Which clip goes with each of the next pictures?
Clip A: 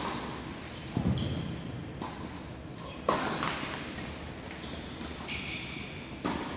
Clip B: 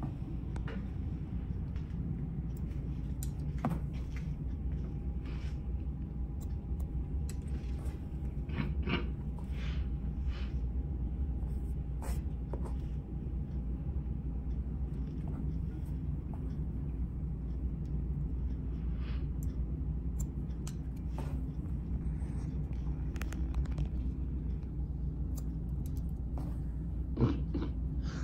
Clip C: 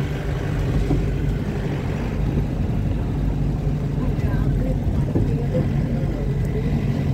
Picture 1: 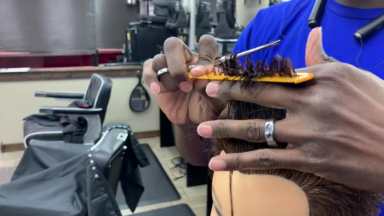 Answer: B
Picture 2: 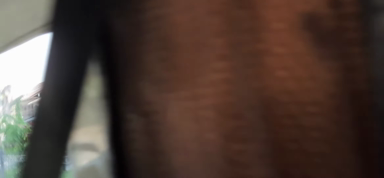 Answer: C